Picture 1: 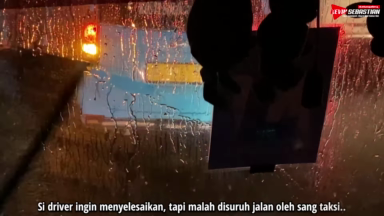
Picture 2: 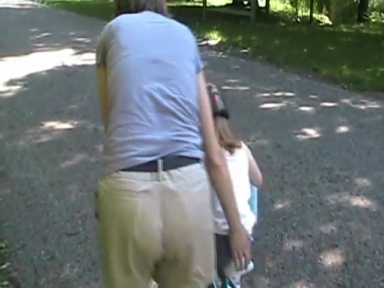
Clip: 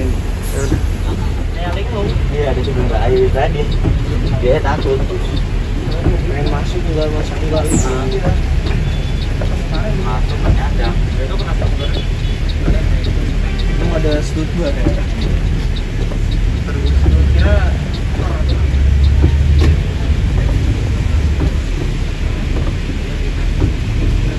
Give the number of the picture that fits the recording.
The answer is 1